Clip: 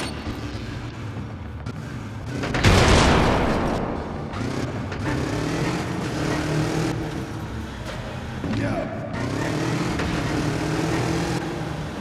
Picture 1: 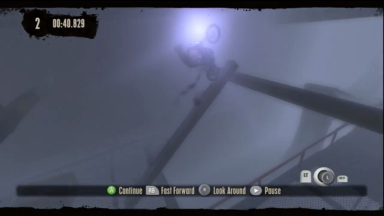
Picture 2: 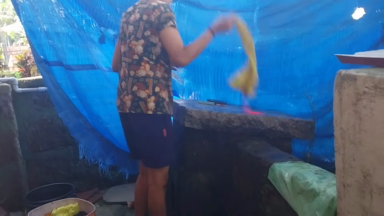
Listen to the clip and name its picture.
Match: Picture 1